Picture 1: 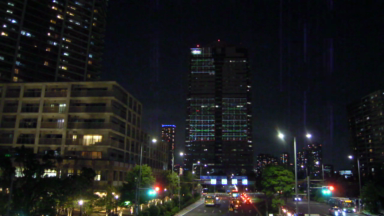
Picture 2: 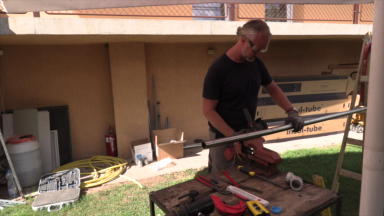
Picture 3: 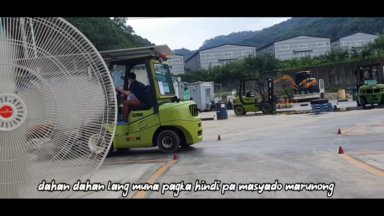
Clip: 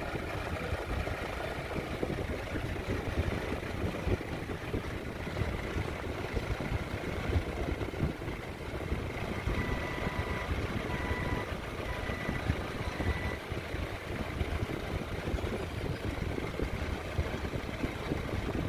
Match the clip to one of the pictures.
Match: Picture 3